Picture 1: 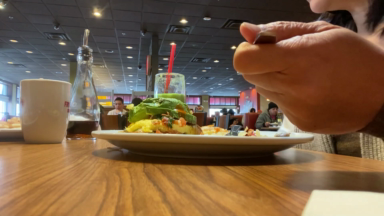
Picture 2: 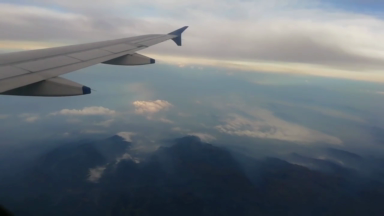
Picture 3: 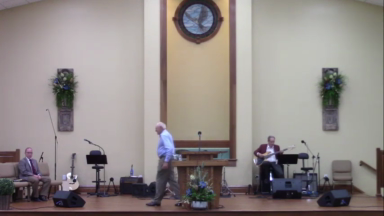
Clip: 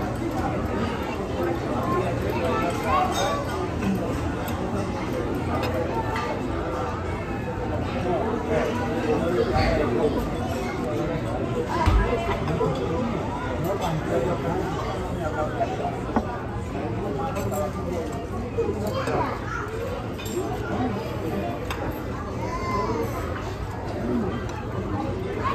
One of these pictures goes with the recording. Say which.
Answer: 1